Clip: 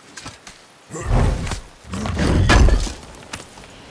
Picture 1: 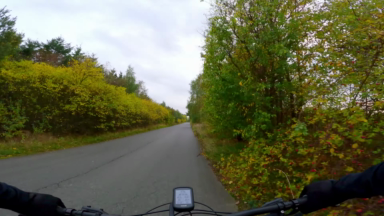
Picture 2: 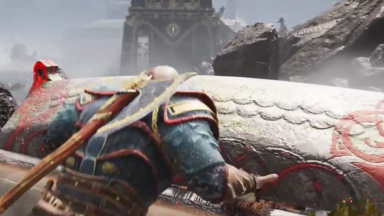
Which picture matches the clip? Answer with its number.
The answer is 2